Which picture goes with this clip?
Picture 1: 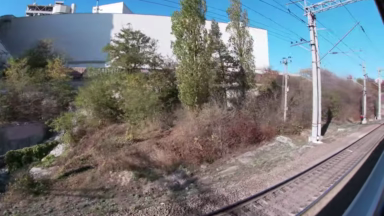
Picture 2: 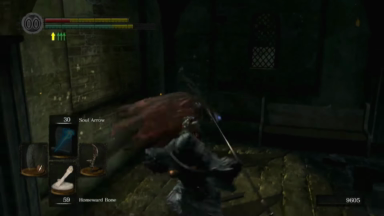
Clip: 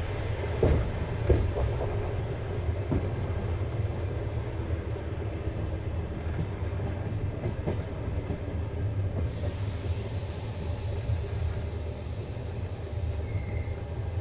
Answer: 1